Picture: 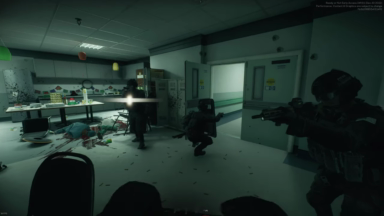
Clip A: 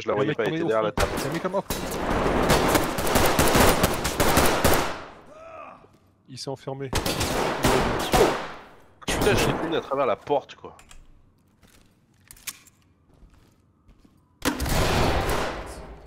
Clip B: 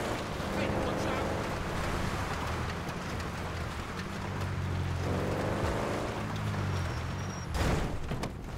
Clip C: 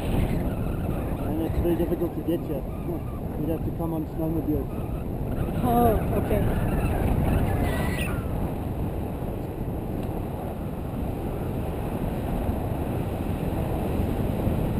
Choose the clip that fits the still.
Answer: A